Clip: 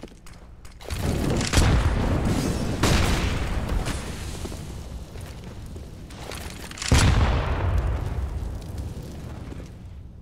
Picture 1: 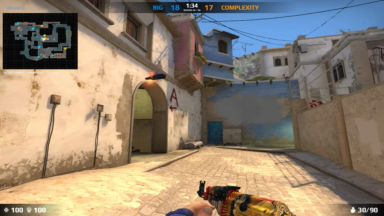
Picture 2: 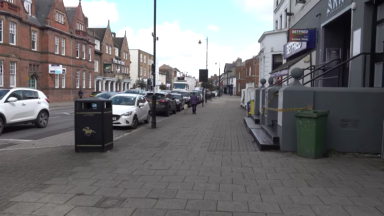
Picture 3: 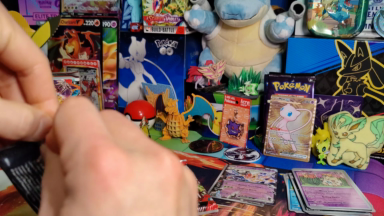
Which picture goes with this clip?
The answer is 1